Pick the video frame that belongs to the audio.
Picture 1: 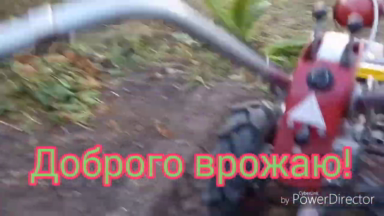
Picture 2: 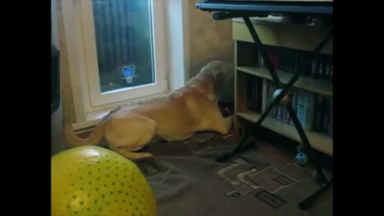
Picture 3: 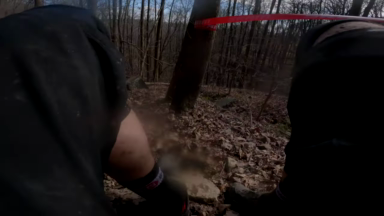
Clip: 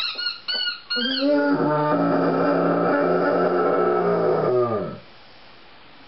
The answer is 2